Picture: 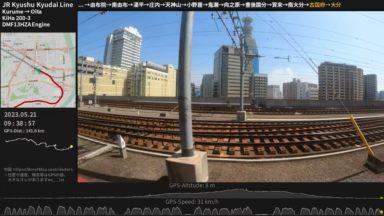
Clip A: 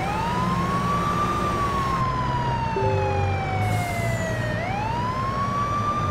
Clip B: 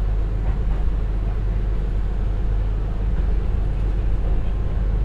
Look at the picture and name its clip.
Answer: B